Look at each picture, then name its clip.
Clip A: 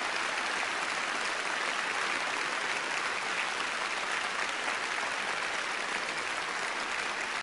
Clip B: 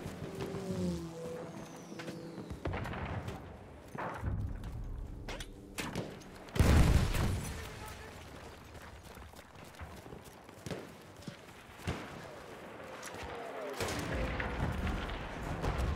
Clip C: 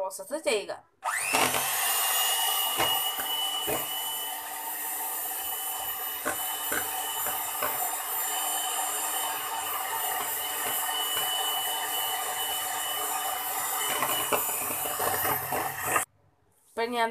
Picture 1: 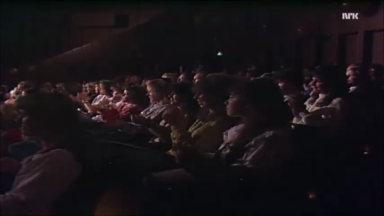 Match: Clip A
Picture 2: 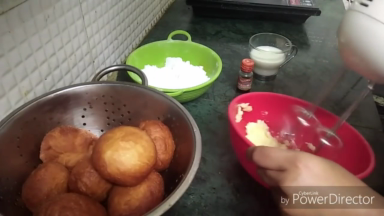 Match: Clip C